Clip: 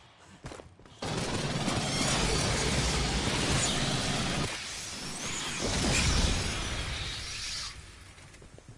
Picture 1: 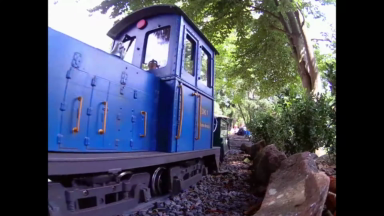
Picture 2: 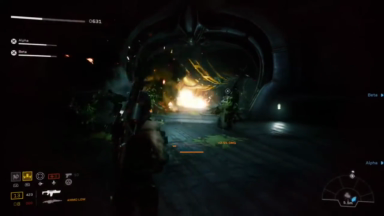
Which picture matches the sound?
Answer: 2